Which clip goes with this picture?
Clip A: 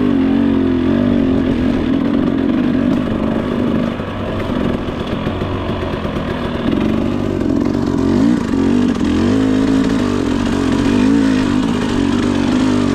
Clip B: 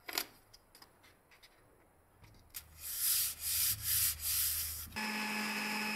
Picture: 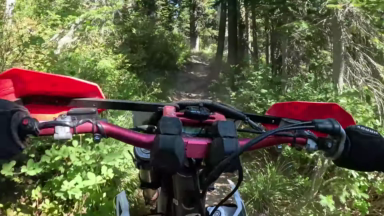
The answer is A